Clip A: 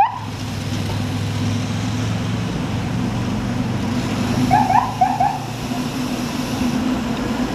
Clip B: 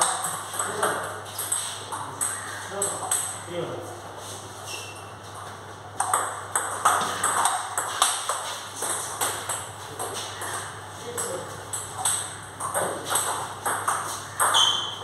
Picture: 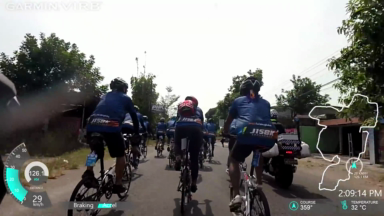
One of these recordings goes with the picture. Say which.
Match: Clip A